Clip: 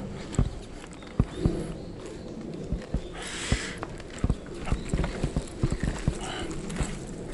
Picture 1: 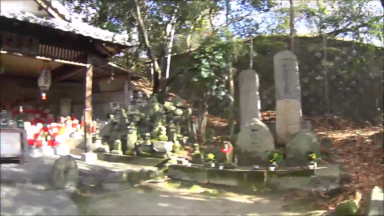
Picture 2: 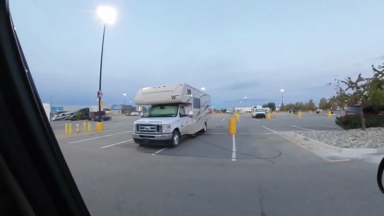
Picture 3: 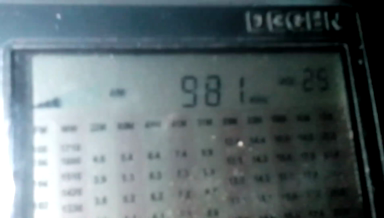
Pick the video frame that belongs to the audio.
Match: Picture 1